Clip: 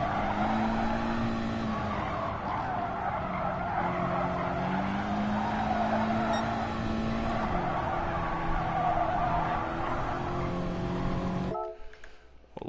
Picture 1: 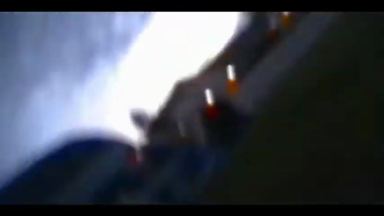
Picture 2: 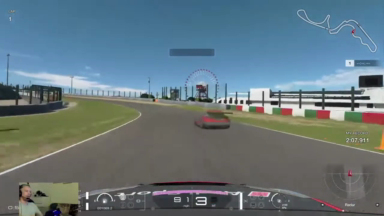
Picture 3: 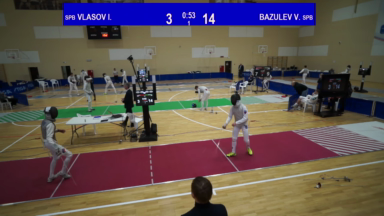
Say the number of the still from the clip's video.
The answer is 2